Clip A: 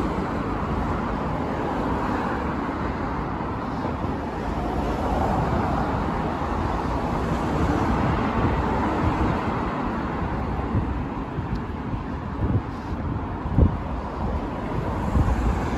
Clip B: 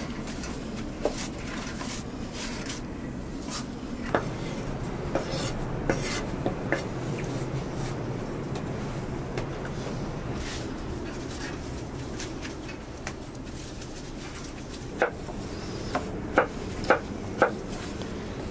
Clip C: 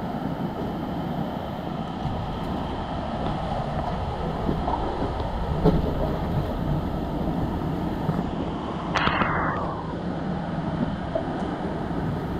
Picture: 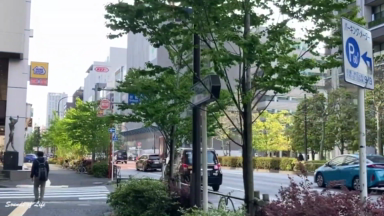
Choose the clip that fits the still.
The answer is A